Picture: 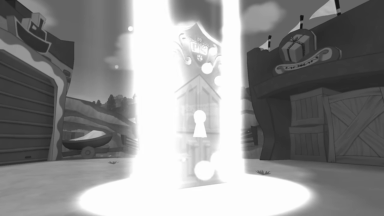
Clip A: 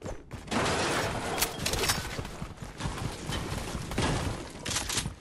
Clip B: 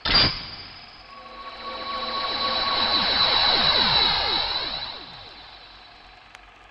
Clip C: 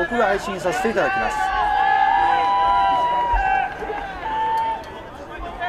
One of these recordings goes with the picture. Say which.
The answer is B